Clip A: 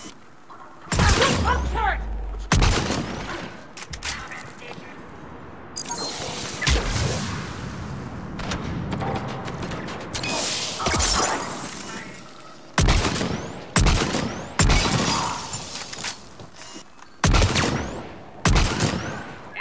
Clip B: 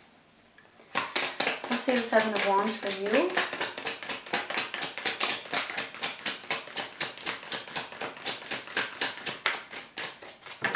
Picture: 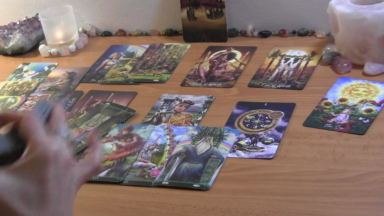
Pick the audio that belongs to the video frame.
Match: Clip B